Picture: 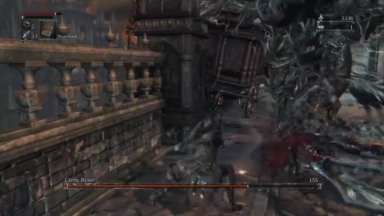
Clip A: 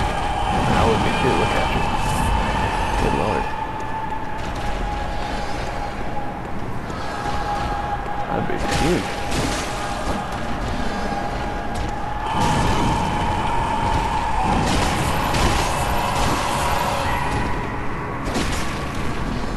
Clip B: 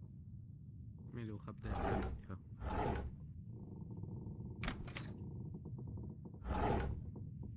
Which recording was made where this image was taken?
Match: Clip A